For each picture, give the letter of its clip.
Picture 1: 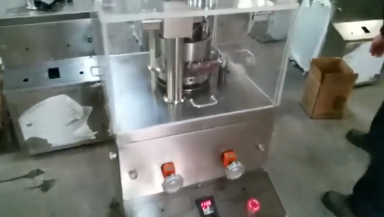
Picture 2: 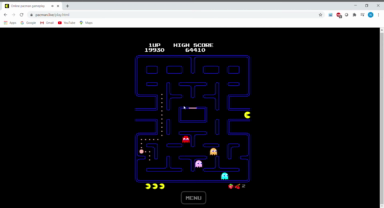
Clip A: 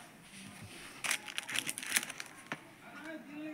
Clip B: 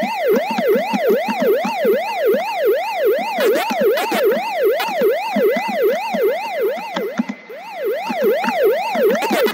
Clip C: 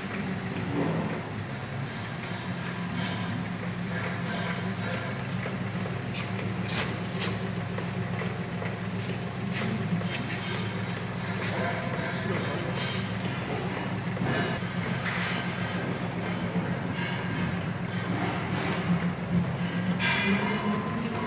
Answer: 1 C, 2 B